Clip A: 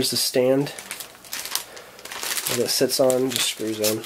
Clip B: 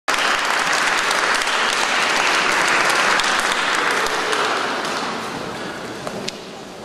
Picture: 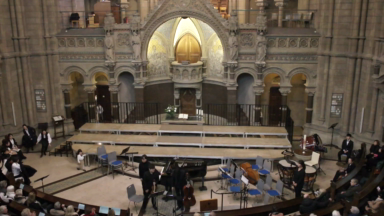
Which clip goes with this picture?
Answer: B